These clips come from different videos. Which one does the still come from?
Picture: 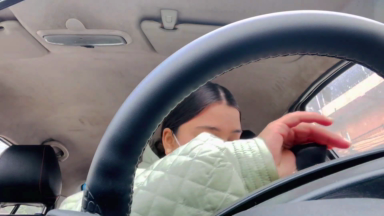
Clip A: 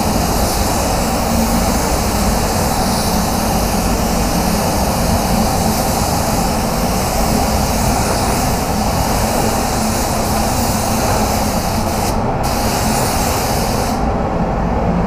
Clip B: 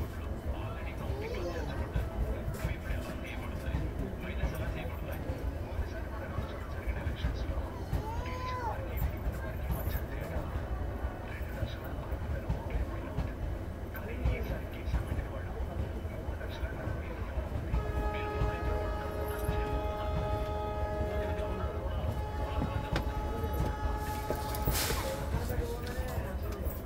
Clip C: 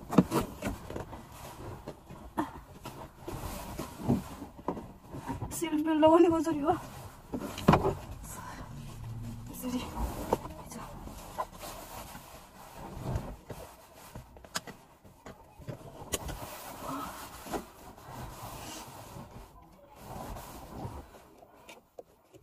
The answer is C